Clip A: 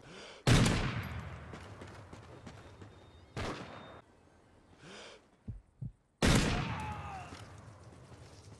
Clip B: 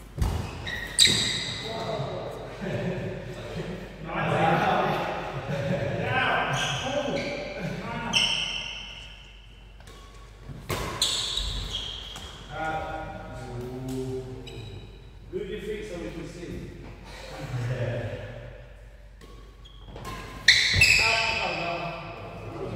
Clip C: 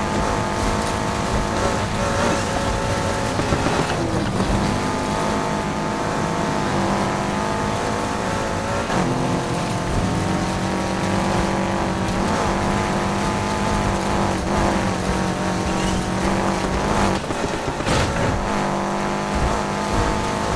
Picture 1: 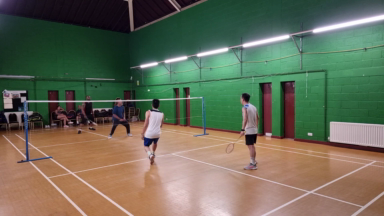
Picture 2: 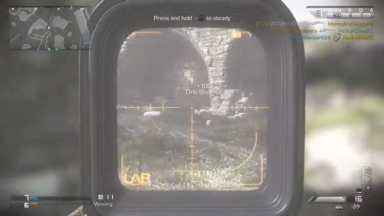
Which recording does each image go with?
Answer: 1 B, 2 A